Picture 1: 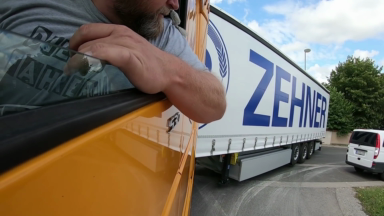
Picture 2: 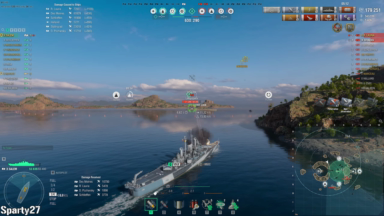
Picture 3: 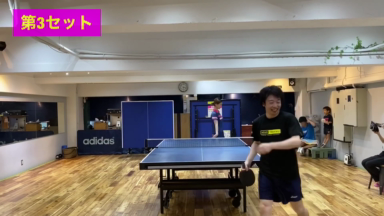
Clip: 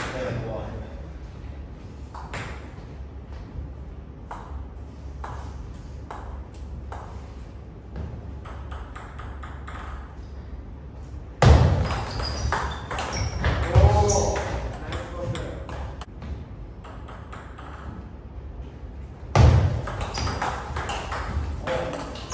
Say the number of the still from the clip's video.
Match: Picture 3